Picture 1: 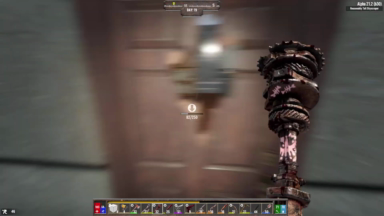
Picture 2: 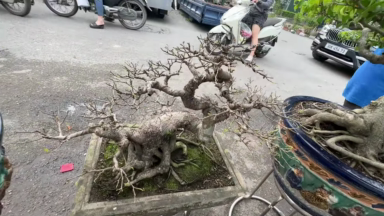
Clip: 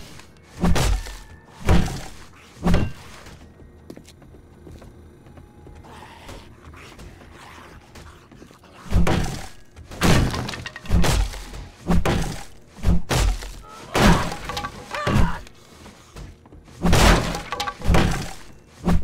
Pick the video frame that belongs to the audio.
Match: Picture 1